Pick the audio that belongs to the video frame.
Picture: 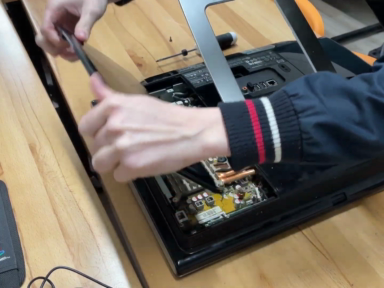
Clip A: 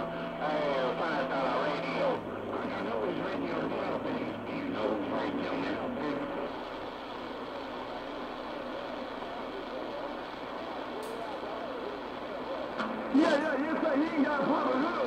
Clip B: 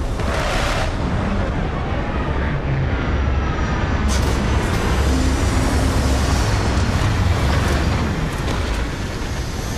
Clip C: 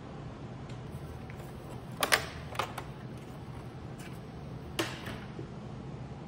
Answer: C